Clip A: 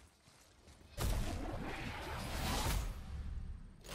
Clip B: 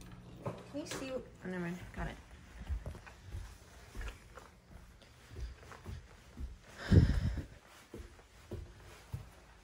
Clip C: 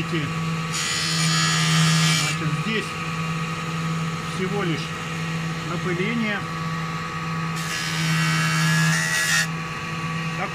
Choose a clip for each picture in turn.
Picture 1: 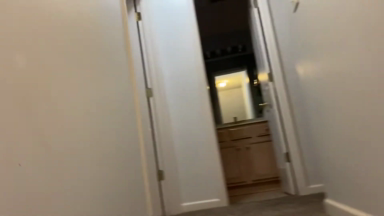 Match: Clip B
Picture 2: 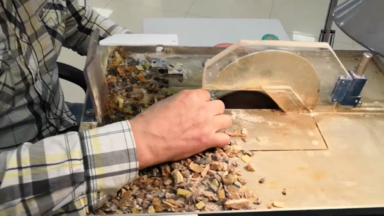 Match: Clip C